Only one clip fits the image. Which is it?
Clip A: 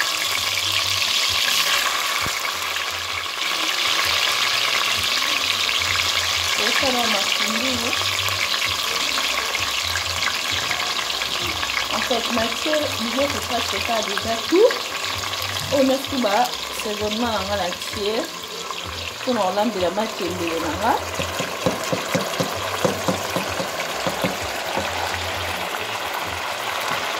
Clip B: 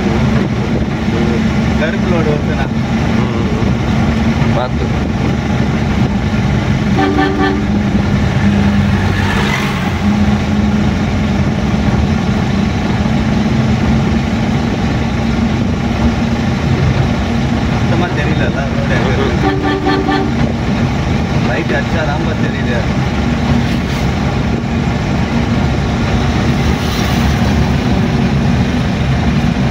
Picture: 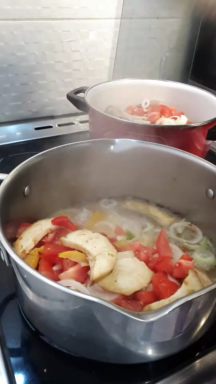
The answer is A